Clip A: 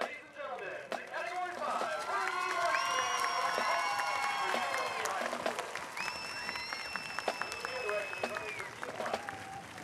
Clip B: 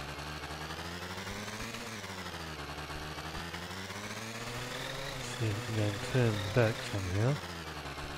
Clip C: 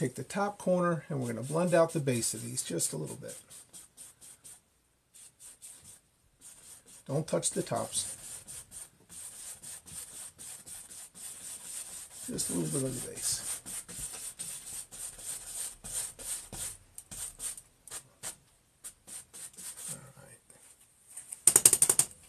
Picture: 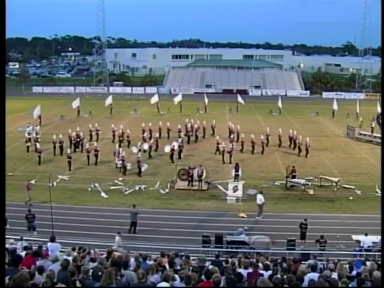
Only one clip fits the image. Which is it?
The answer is A